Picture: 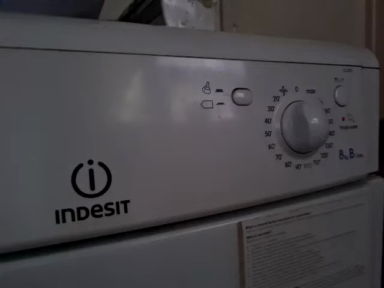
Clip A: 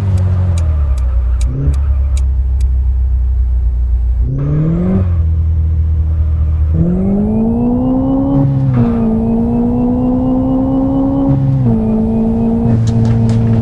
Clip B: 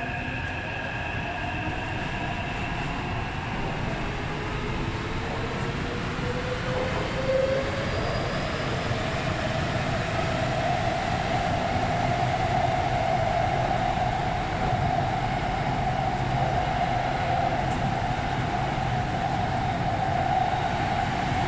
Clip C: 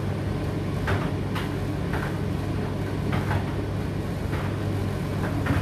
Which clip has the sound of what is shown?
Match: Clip C